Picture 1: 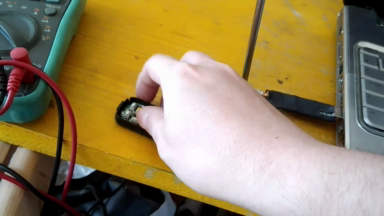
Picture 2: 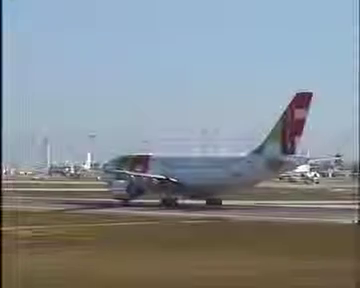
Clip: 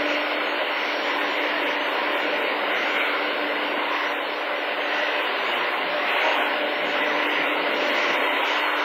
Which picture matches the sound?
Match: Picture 2